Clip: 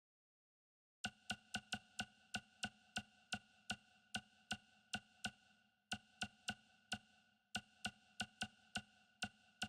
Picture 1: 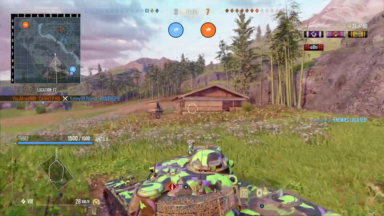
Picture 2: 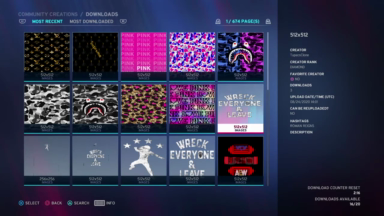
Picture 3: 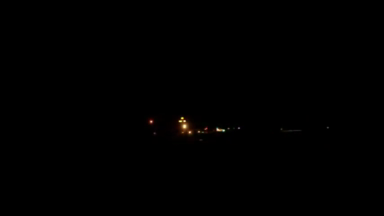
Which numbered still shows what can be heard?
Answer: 2